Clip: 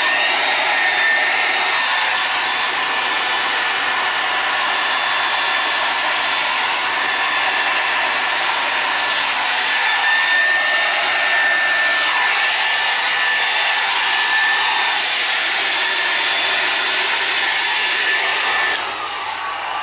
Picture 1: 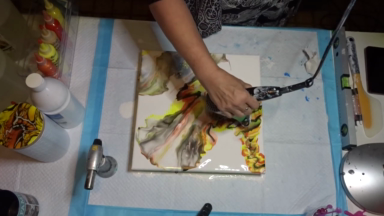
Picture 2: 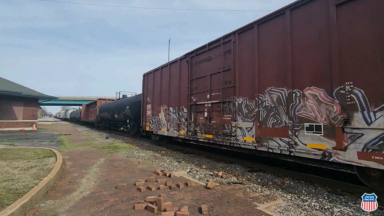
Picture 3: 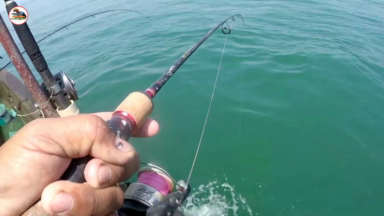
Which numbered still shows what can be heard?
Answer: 1